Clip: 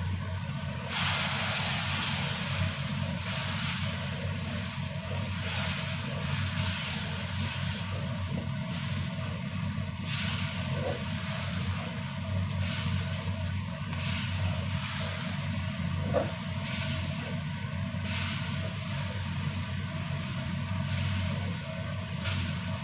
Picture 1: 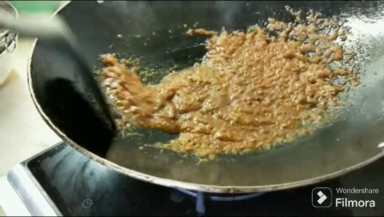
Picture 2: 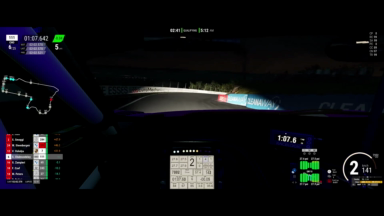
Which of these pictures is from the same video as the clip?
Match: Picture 1